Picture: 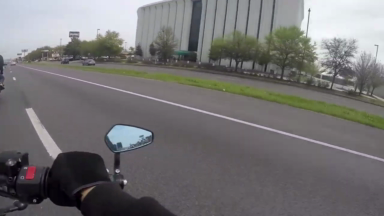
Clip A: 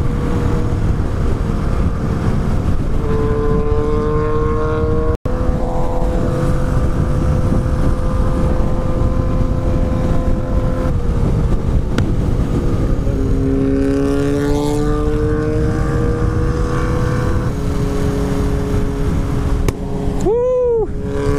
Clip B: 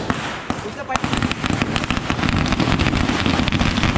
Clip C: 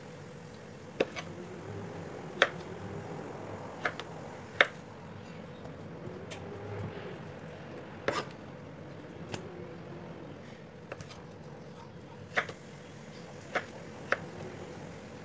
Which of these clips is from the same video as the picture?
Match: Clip A